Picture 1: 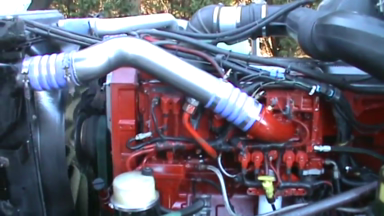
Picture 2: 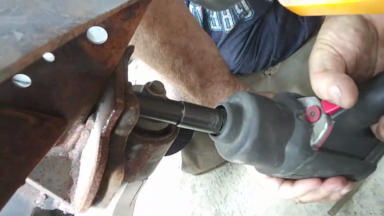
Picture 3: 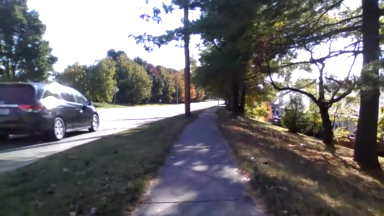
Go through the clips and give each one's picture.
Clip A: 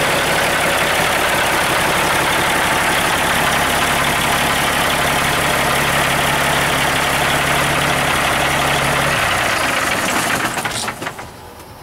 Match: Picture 1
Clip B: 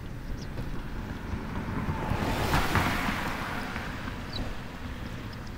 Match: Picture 3